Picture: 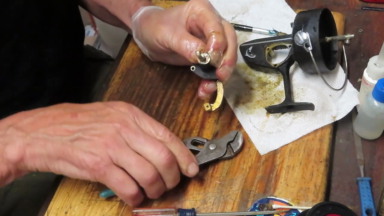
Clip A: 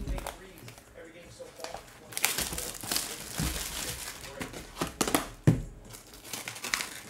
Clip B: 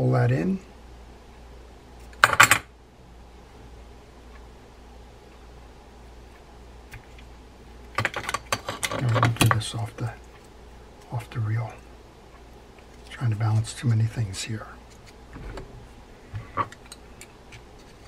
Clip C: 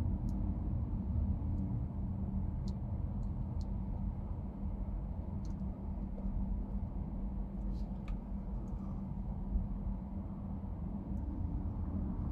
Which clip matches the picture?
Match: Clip B